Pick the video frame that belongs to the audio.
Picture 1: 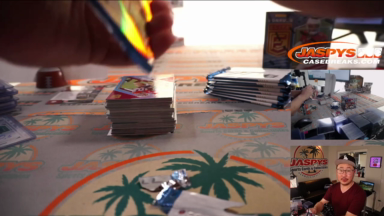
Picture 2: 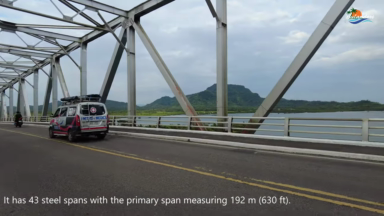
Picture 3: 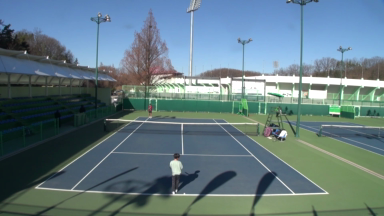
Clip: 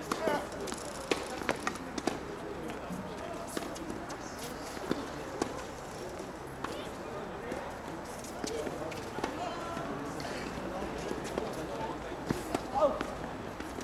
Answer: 3